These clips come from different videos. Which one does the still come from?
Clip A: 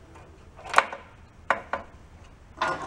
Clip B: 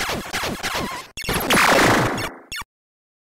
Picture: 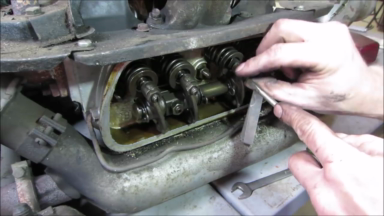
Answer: A